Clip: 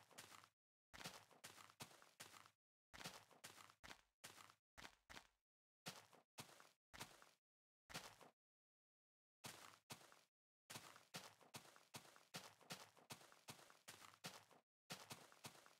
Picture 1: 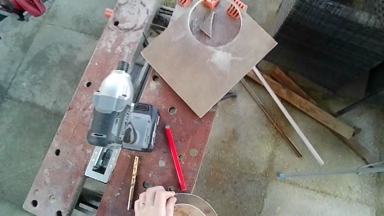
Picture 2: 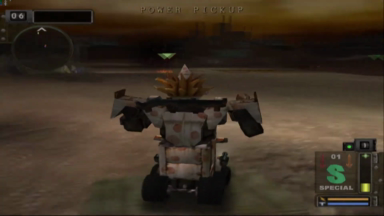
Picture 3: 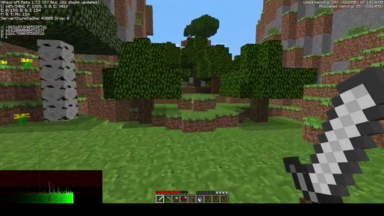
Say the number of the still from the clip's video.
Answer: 3